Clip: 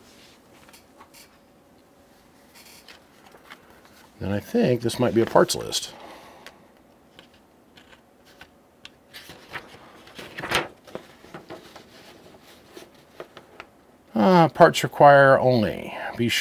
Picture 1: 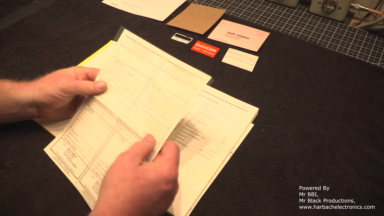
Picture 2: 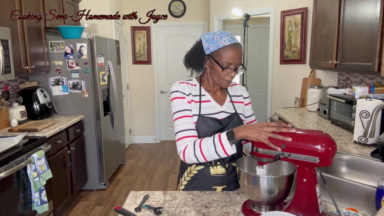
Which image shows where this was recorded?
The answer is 1